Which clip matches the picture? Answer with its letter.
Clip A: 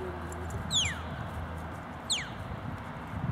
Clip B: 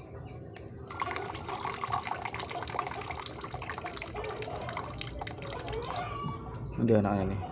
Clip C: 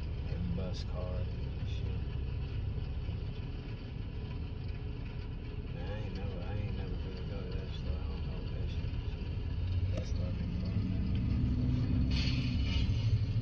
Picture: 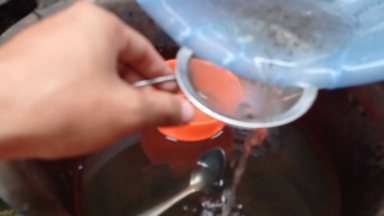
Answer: B